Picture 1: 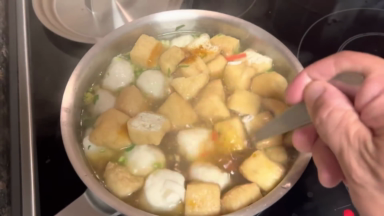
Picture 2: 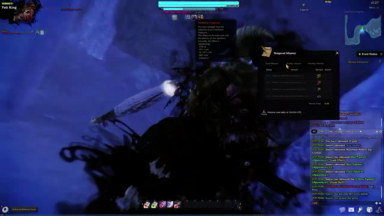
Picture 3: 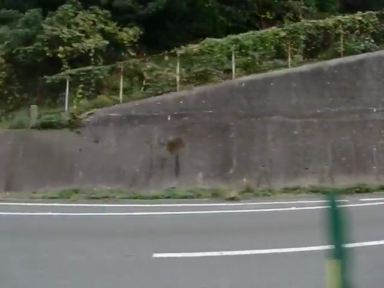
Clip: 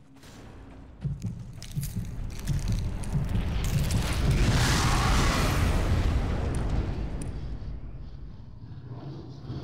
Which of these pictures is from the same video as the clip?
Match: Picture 2